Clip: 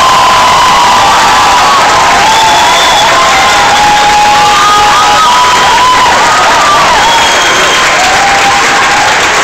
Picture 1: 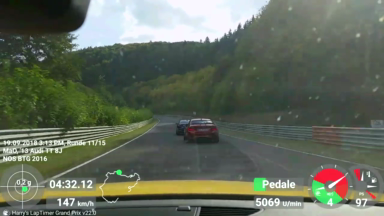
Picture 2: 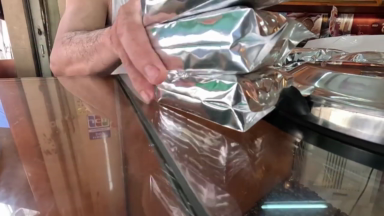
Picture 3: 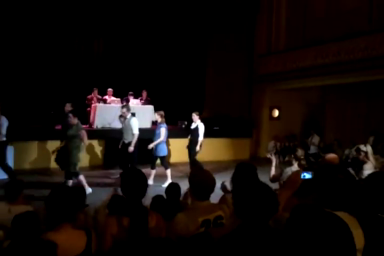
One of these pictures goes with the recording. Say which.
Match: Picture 3